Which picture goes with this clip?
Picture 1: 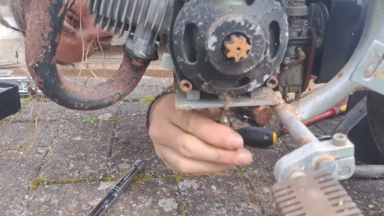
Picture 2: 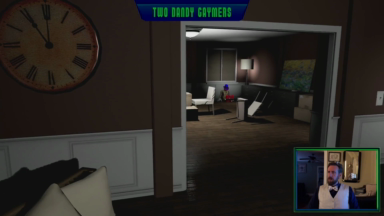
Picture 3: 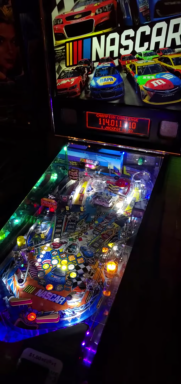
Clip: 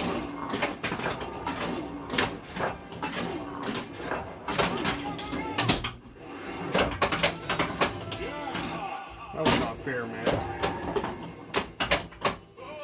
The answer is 3